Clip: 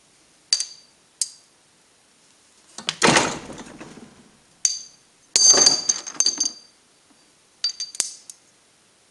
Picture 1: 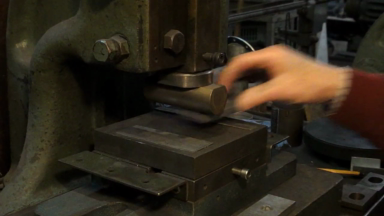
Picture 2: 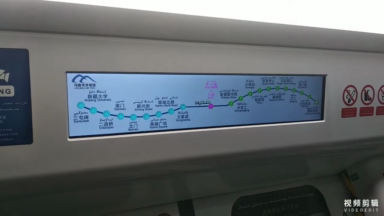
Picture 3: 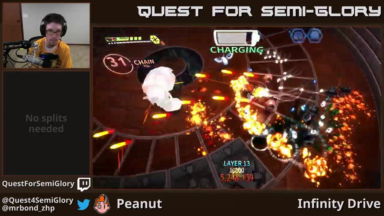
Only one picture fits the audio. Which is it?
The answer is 1